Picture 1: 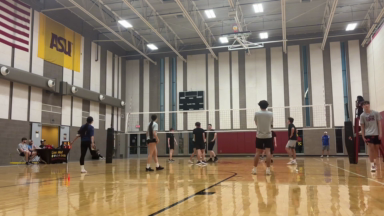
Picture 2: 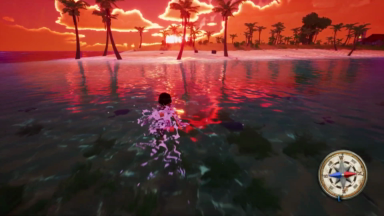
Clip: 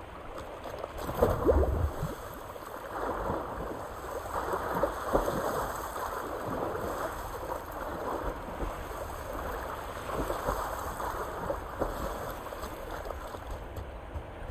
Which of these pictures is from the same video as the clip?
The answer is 2